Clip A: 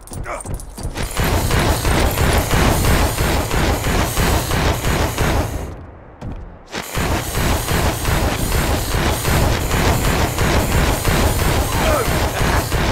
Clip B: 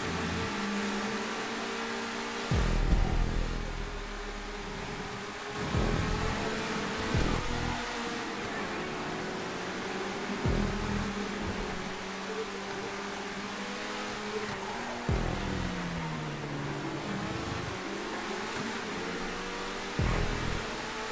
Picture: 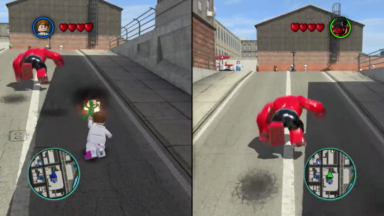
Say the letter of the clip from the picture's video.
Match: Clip A